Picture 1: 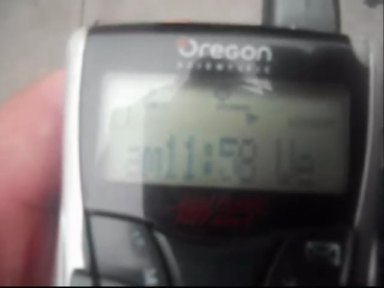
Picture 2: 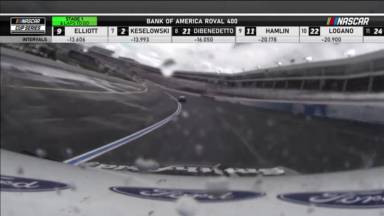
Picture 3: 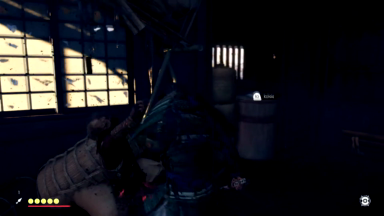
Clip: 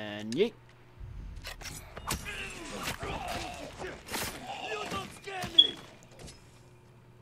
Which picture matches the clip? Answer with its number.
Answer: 3